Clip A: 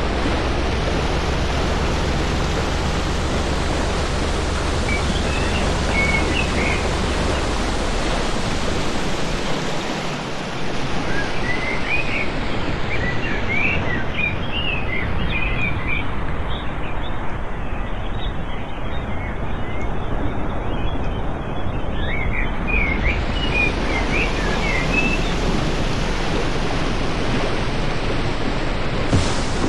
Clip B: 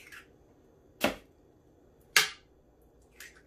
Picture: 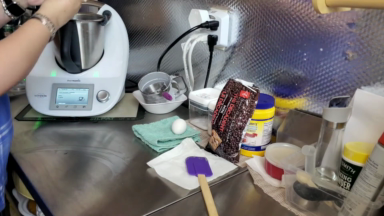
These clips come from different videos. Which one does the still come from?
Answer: B